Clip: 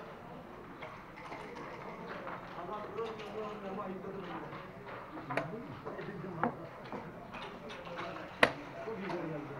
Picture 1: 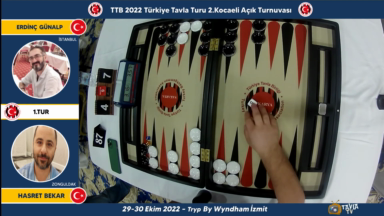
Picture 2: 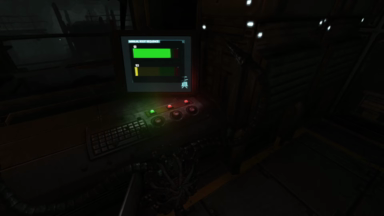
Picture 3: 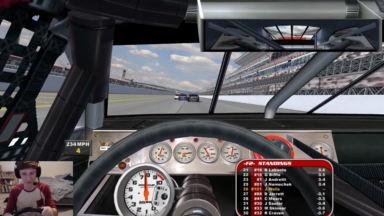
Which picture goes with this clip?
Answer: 1